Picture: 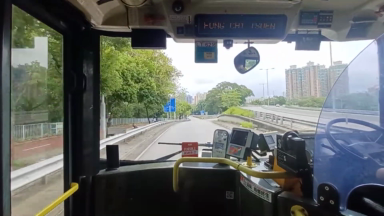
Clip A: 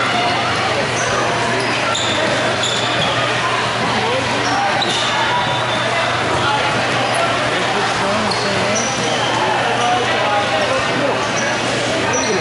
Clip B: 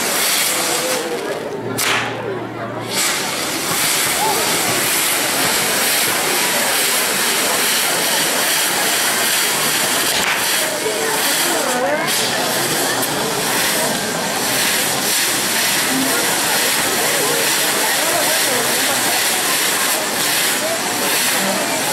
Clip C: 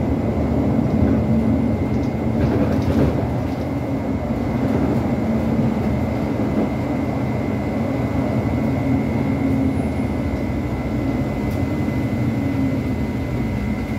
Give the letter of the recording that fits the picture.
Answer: C